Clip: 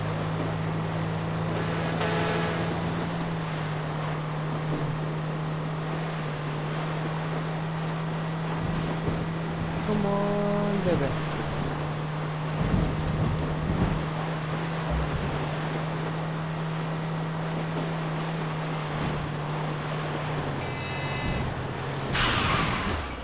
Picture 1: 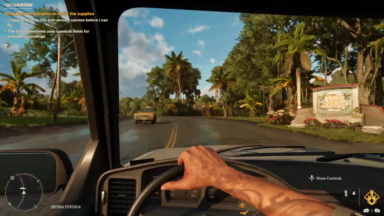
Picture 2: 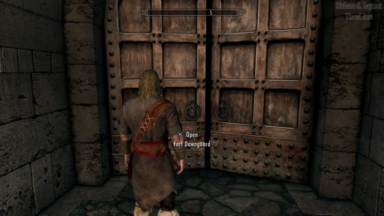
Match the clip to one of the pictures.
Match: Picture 1